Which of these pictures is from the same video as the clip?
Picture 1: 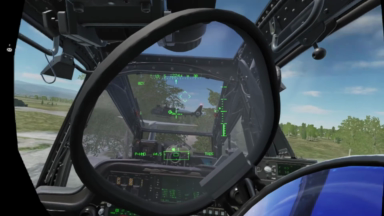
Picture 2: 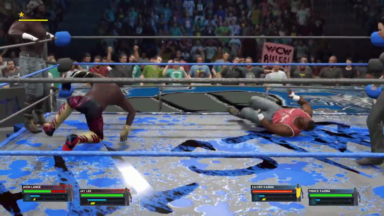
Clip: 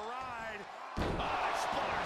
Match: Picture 2